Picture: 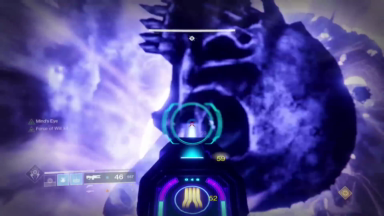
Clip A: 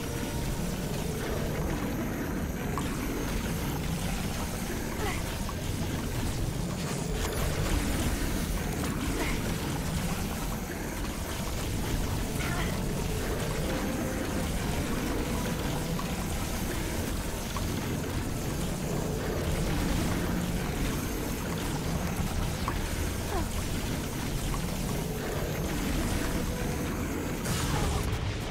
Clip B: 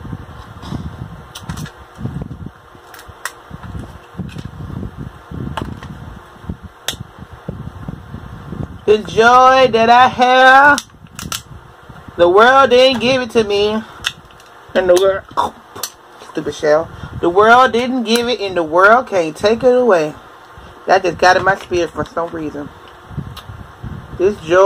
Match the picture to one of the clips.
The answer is A